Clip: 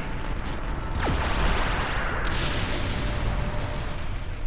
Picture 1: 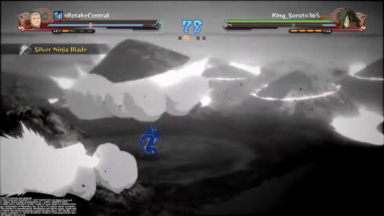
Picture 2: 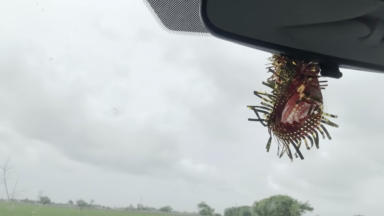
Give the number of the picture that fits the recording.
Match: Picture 1